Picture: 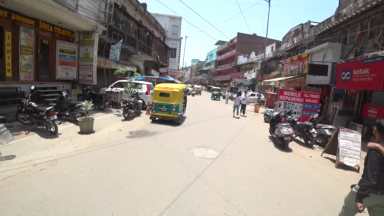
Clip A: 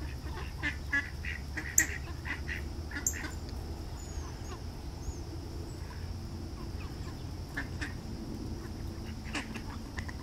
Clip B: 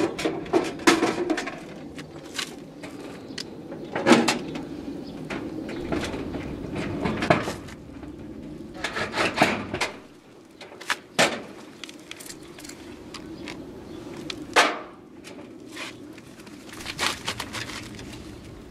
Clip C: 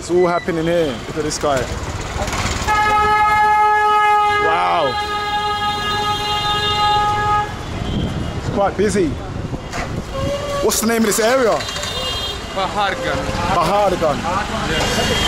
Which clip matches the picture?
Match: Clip C